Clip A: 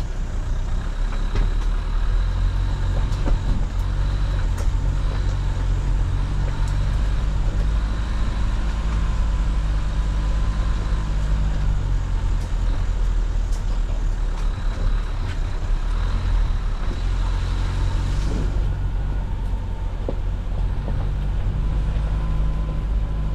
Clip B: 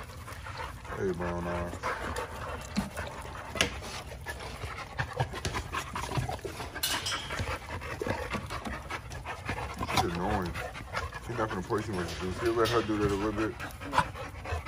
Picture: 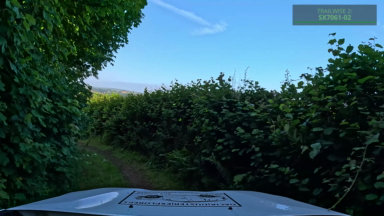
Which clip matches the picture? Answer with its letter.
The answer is A